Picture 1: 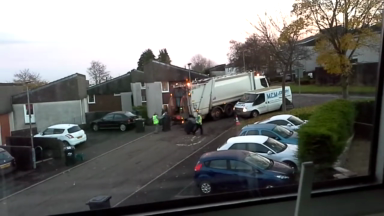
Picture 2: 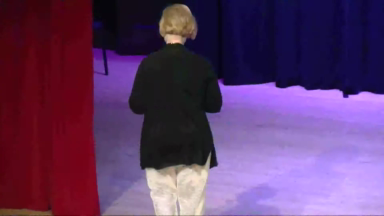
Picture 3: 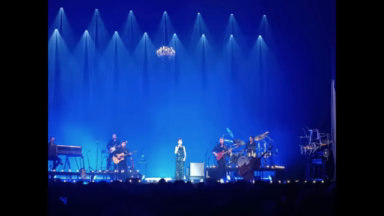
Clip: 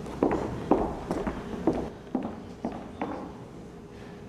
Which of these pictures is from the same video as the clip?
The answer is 2